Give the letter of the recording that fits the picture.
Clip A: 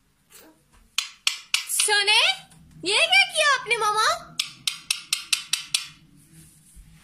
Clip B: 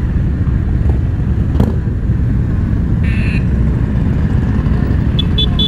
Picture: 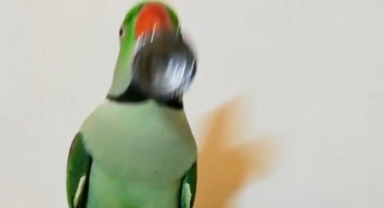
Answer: A